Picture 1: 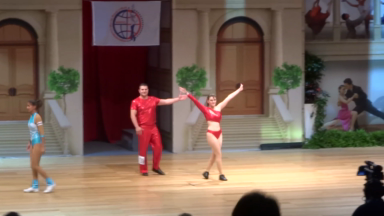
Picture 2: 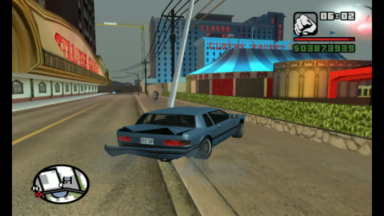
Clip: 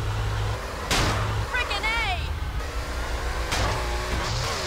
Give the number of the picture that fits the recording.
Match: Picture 2